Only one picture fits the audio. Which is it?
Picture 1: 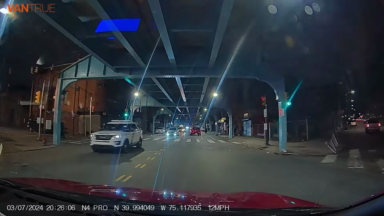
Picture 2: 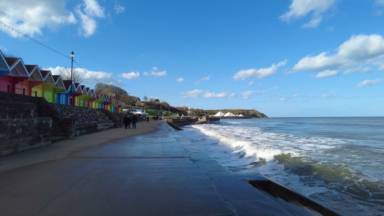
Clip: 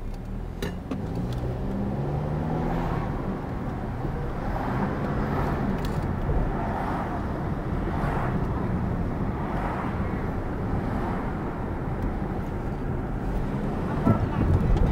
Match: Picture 1